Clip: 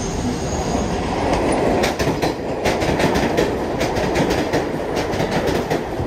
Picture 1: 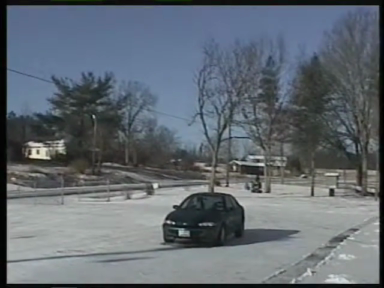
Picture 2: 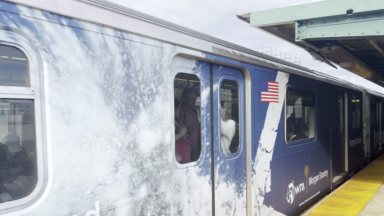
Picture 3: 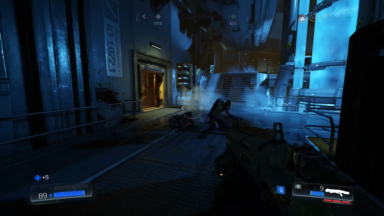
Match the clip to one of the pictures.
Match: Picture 2